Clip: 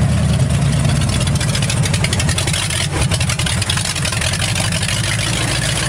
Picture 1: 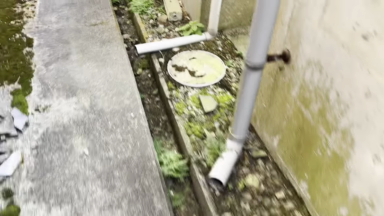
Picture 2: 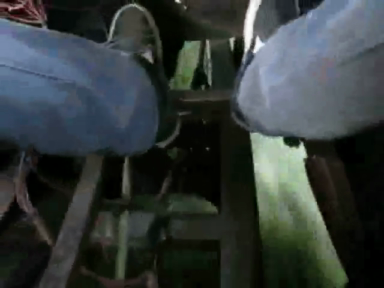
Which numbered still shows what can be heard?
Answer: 2